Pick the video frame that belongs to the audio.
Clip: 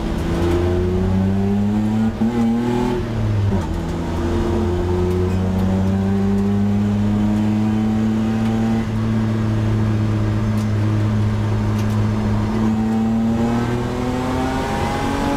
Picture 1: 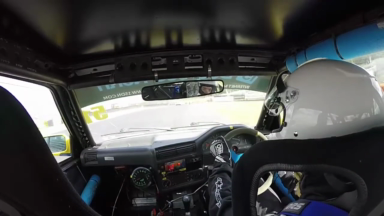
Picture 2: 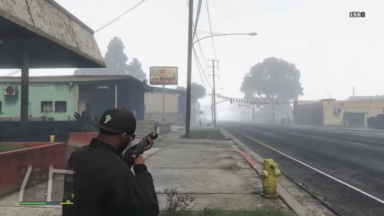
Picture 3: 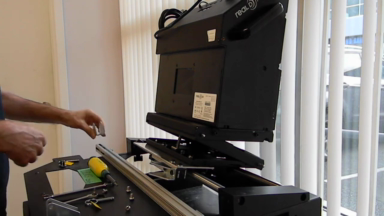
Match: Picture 1